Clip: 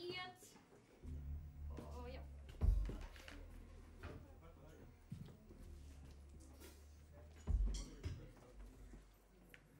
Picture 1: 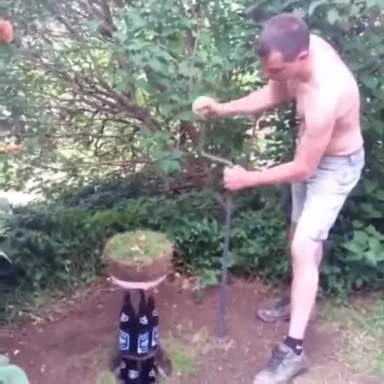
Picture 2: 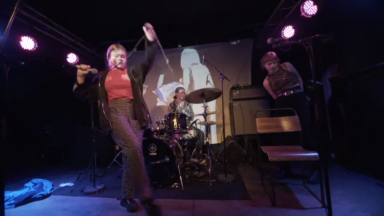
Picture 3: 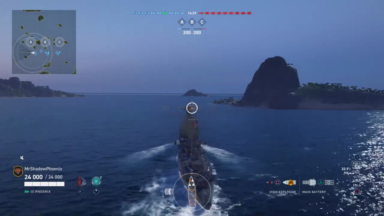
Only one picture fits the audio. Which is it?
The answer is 2